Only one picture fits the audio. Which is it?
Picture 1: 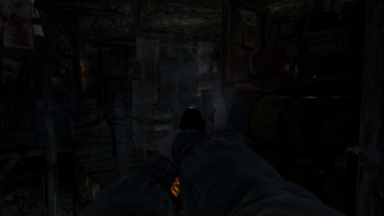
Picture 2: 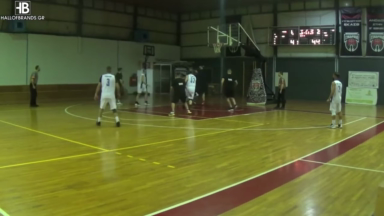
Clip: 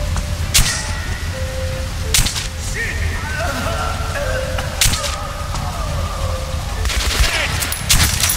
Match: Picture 1